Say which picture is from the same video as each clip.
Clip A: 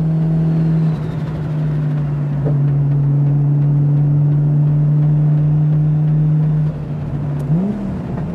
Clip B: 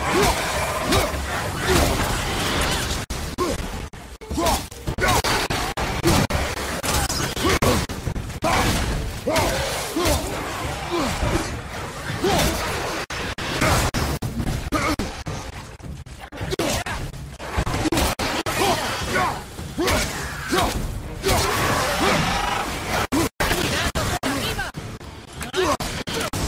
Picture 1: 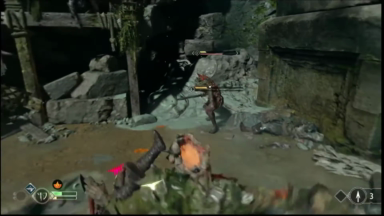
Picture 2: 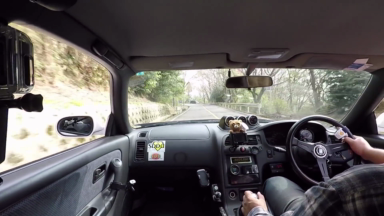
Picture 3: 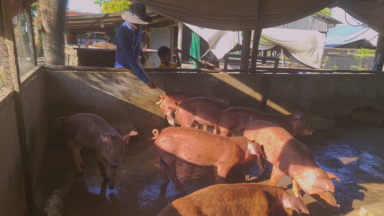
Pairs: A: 2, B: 1